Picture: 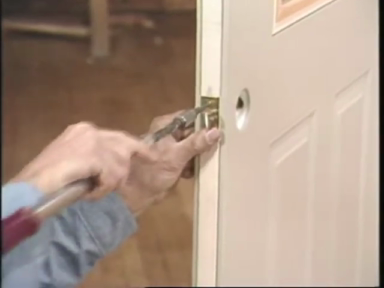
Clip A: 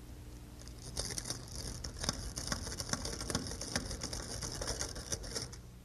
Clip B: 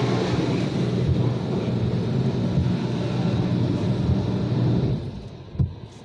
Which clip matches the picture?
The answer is A